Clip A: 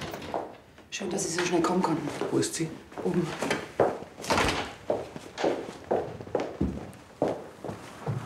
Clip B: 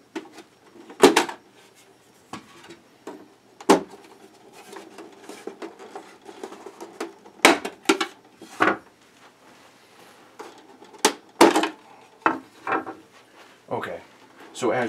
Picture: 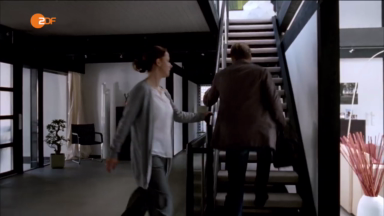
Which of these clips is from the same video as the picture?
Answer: A